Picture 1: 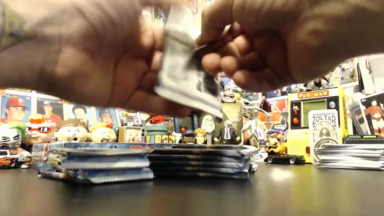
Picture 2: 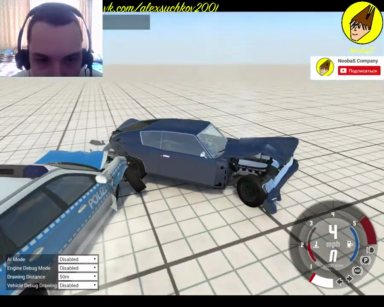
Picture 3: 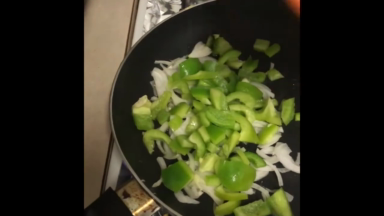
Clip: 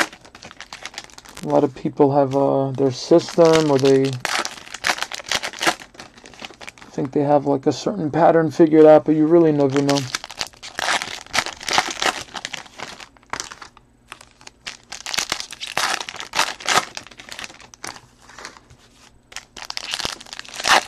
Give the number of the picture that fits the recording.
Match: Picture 1